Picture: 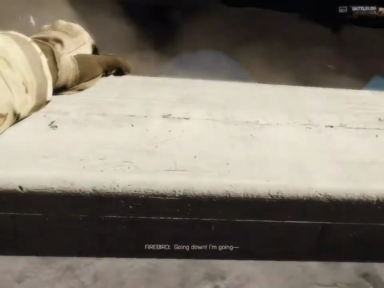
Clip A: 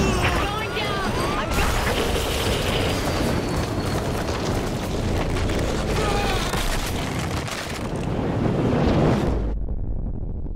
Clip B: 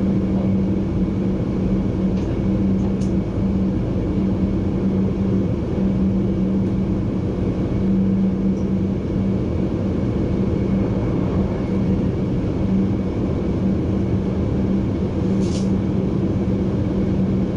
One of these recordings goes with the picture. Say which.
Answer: A